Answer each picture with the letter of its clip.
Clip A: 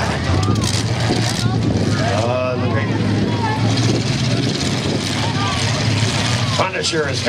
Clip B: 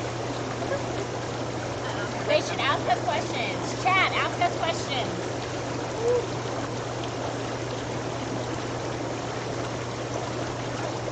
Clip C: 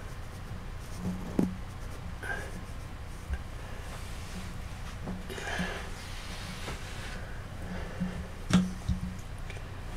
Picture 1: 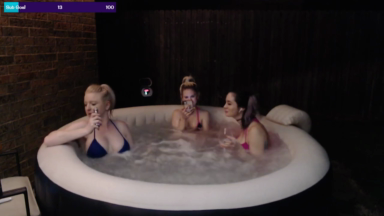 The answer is B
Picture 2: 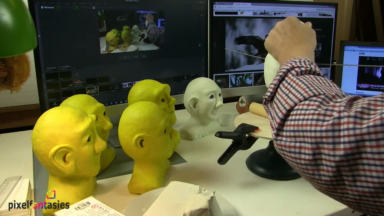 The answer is C